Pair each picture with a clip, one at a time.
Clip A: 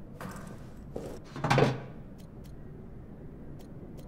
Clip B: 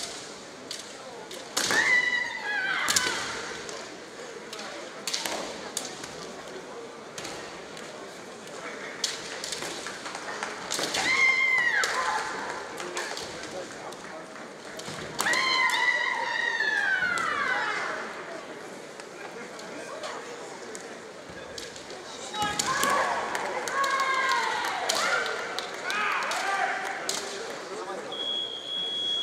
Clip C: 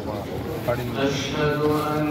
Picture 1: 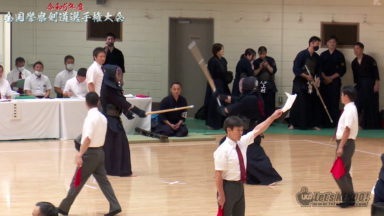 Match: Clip B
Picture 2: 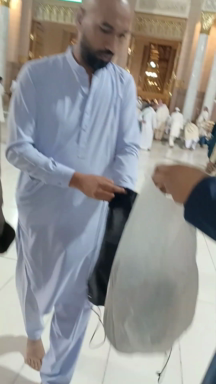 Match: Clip C